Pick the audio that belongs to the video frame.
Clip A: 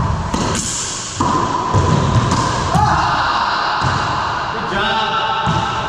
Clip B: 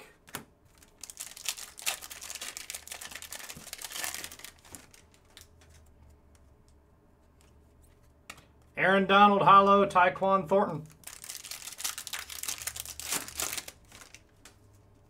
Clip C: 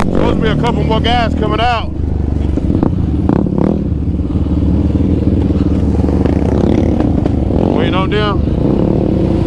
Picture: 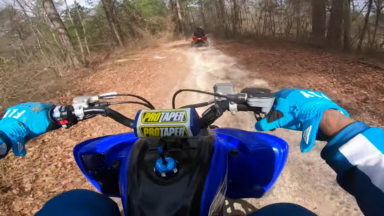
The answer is C